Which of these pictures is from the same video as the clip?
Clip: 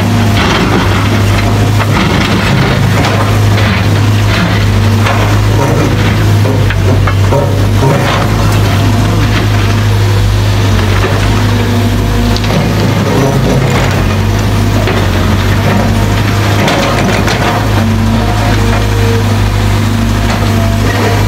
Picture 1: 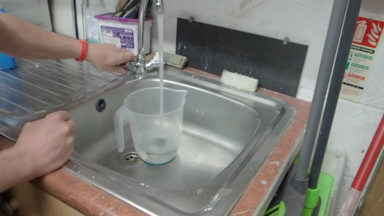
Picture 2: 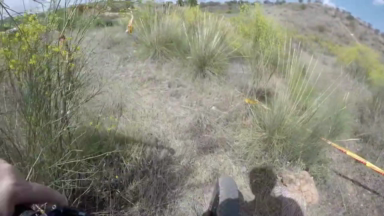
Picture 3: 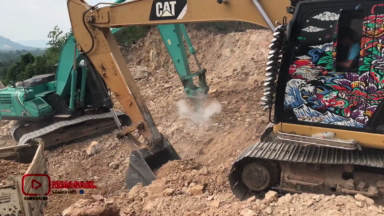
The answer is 3